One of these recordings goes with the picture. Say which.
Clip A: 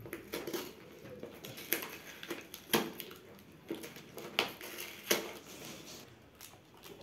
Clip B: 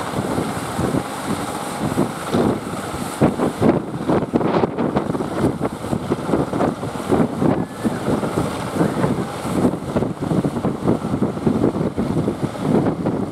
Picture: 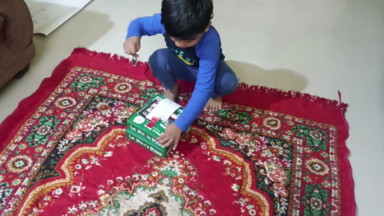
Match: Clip A